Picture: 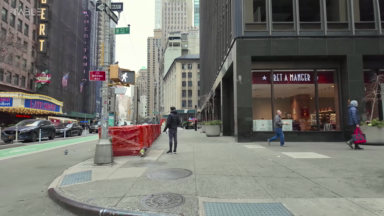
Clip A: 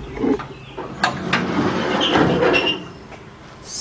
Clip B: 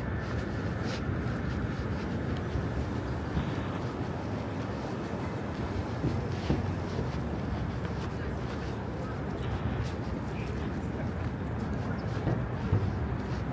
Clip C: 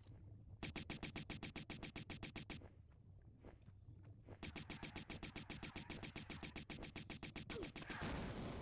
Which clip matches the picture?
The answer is B